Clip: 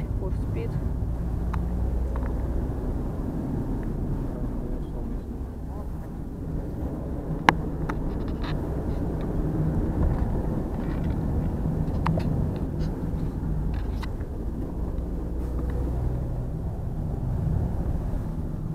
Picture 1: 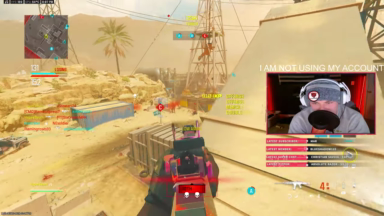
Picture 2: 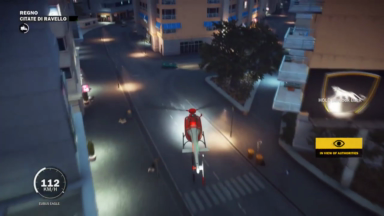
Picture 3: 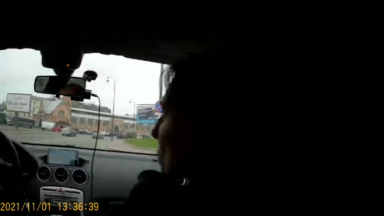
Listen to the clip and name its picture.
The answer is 3